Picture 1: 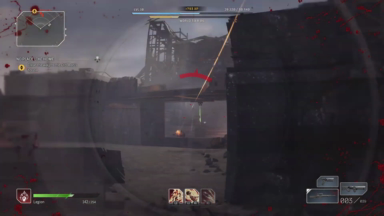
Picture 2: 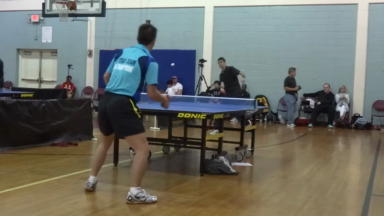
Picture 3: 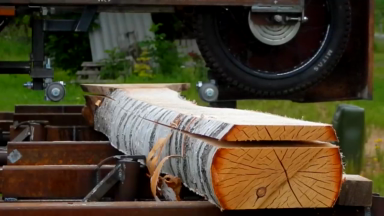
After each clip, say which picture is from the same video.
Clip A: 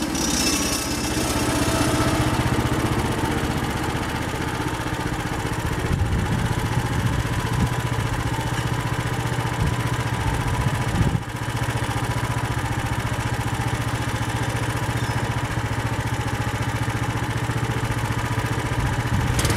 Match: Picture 3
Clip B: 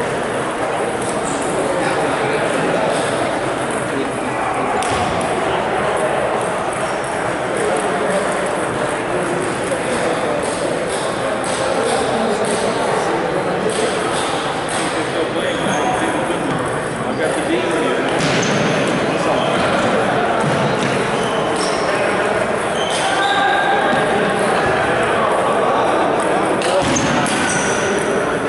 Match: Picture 2